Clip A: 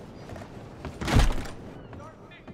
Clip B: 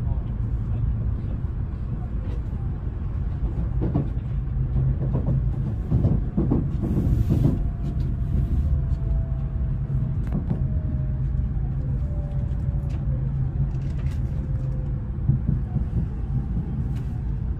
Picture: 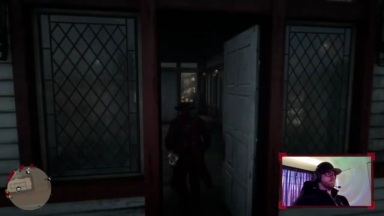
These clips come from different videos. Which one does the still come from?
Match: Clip A